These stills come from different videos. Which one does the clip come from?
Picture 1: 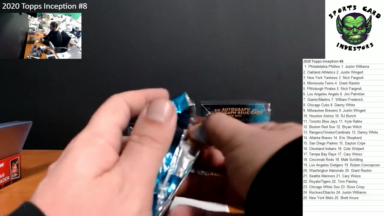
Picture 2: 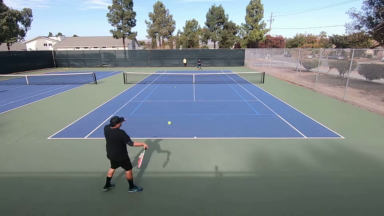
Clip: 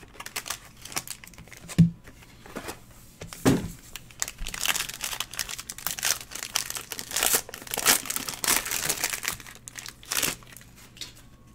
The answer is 1